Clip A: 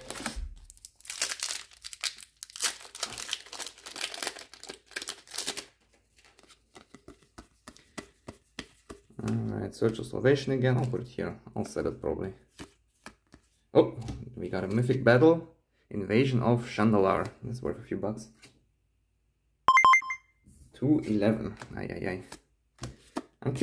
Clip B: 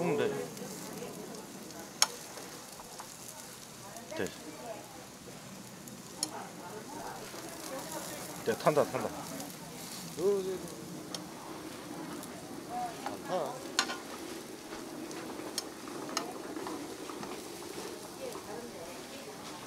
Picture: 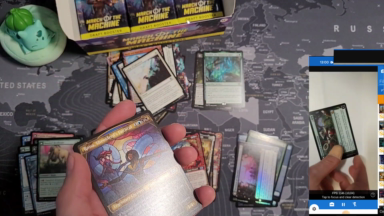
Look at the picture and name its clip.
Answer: A